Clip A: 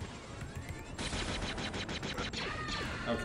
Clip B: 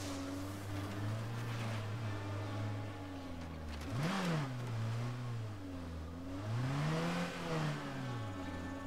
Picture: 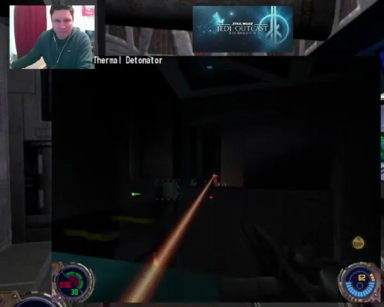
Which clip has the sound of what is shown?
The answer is A